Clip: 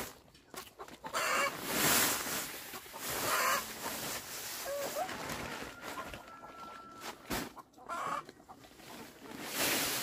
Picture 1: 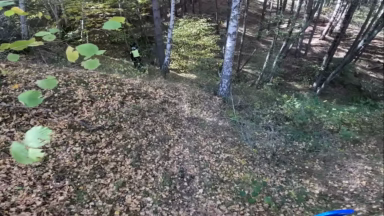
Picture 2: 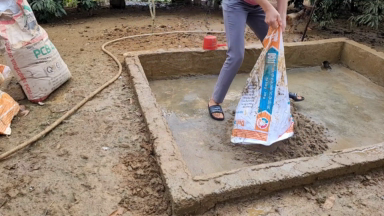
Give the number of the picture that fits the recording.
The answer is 2